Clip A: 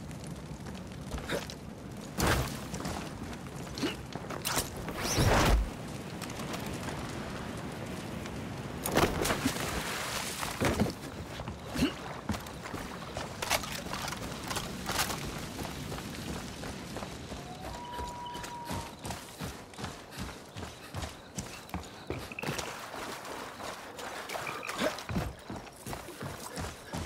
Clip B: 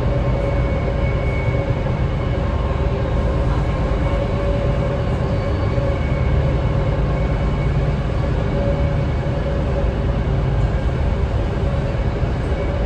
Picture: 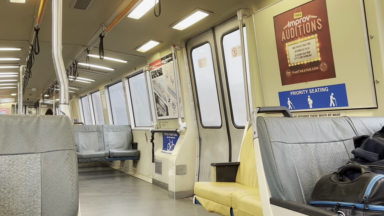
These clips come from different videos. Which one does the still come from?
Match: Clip B